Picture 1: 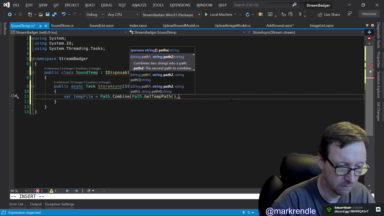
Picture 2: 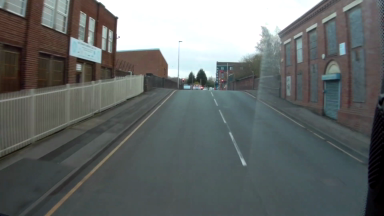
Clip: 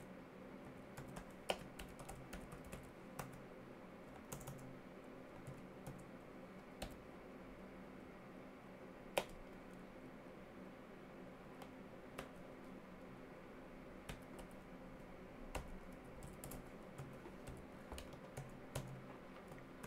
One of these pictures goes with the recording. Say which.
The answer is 1